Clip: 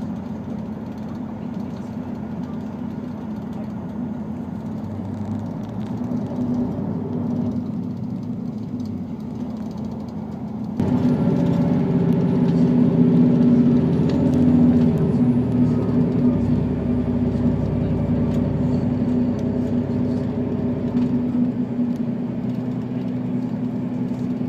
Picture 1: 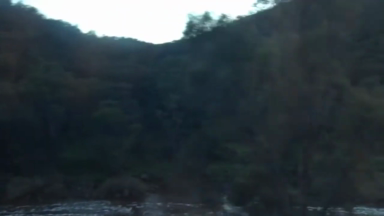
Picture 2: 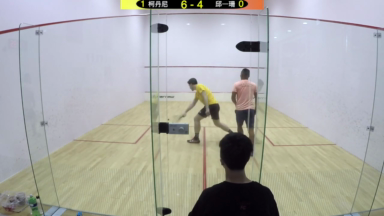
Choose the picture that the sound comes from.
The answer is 1